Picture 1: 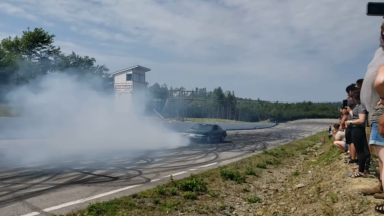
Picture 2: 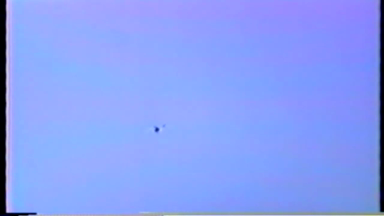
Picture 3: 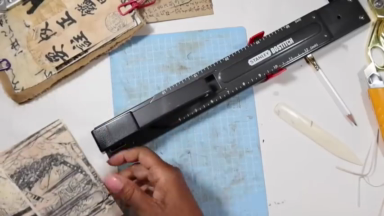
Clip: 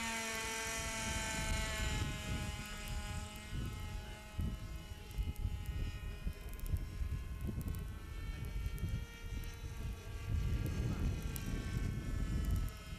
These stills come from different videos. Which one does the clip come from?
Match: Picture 2